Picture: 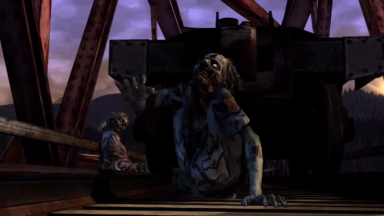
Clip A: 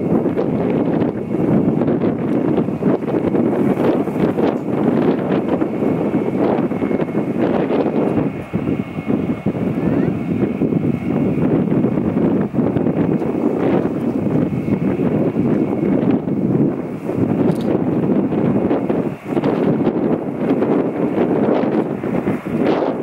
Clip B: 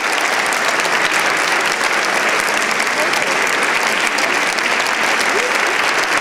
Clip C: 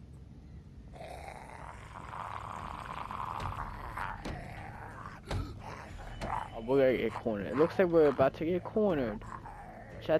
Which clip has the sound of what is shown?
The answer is C